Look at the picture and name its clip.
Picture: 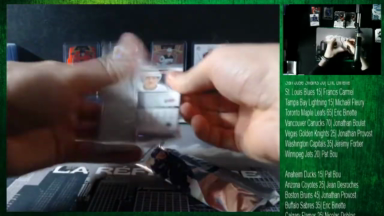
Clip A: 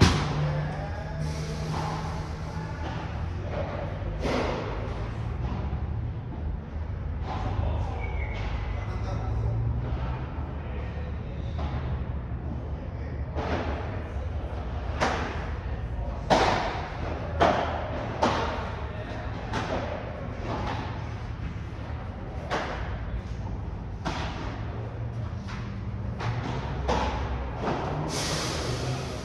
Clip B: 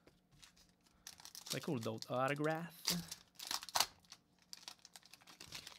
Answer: B